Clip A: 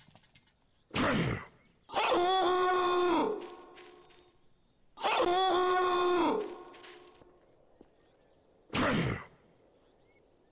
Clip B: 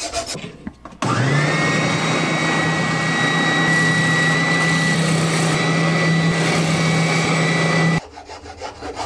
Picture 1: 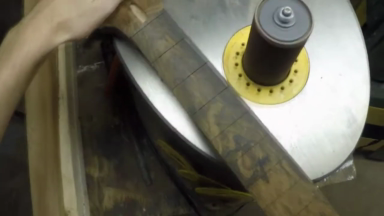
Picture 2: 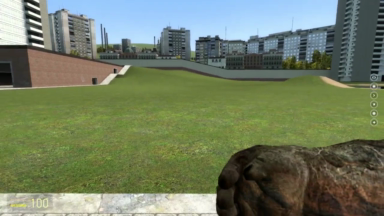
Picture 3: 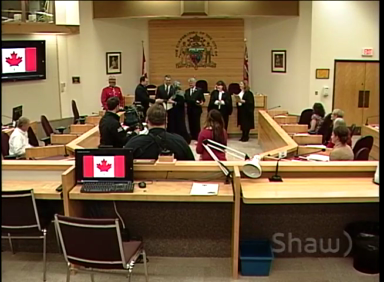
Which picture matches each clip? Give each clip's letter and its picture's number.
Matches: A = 2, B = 1